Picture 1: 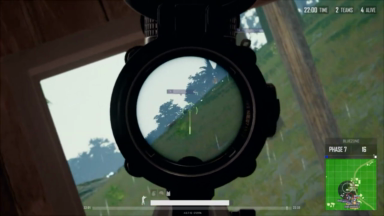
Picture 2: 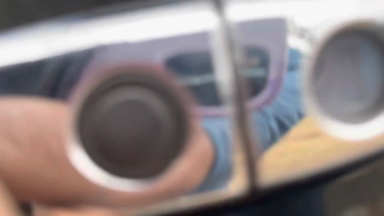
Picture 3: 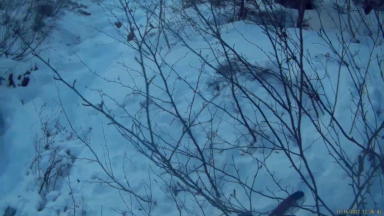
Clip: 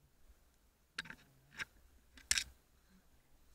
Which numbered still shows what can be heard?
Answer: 3